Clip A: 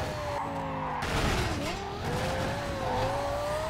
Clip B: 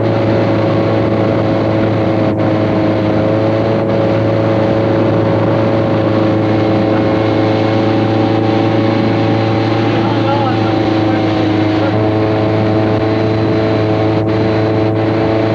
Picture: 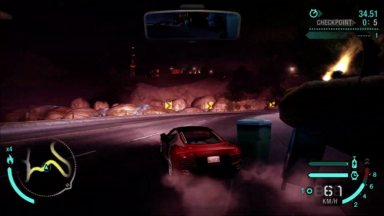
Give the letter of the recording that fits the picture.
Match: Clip A